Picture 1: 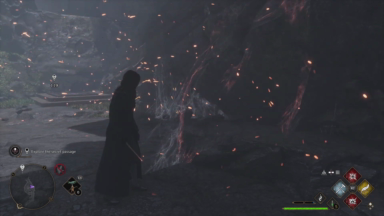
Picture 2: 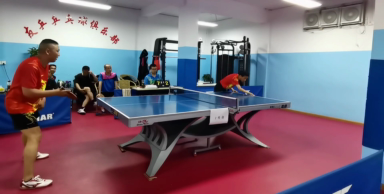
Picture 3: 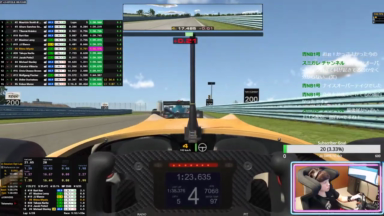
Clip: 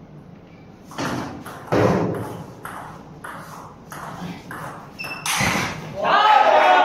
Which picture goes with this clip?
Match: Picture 2